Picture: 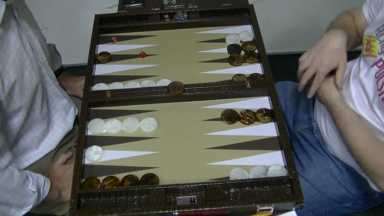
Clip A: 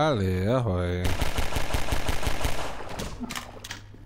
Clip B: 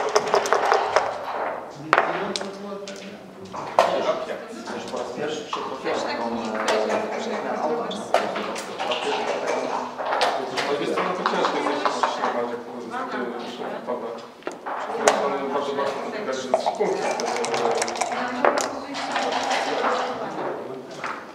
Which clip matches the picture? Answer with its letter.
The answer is B